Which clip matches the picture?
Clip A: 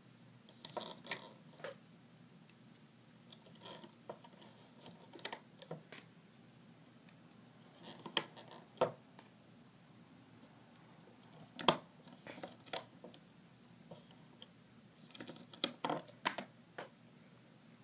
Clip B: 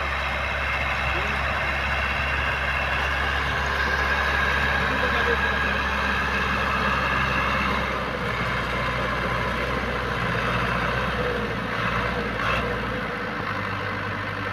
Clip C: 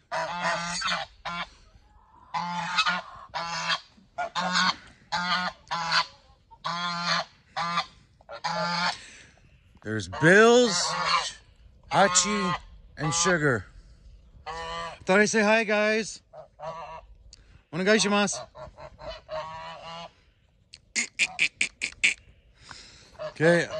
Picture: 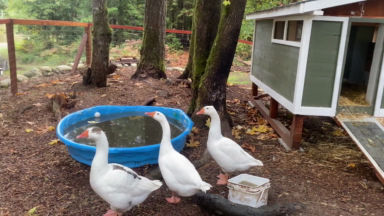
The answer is C